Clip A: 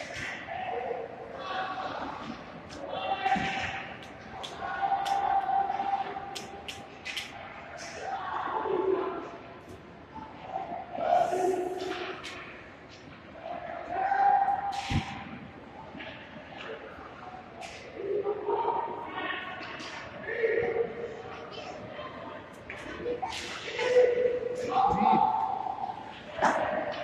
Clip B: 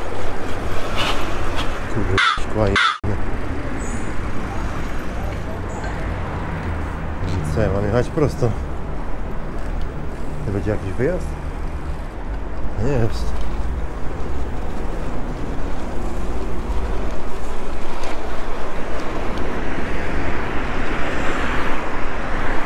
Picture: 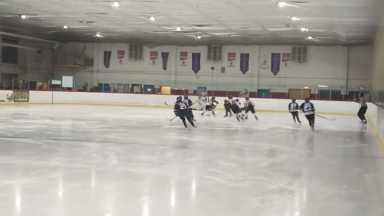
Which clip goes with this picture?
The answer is A